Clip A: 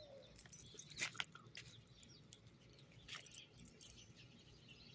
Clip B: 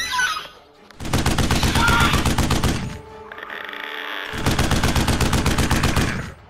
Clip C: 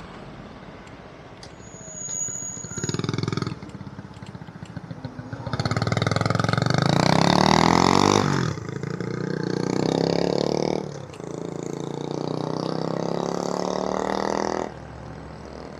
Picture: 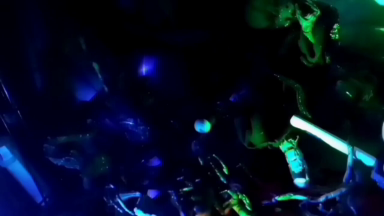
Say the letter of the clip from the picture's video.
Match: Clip B